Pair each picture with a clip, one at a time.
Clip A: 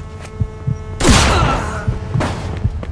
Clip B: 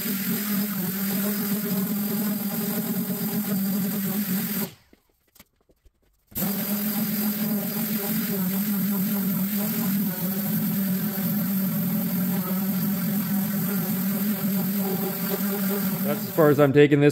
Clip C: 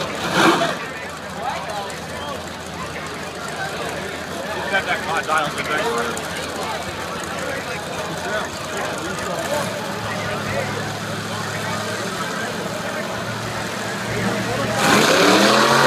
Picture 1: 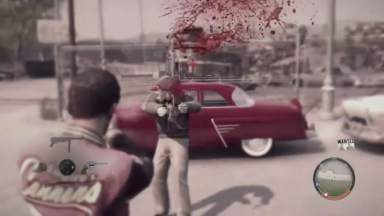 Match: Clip A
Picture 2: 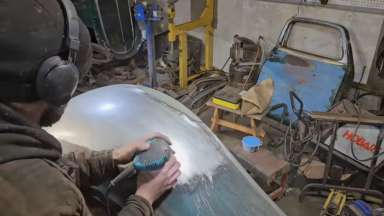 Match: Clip B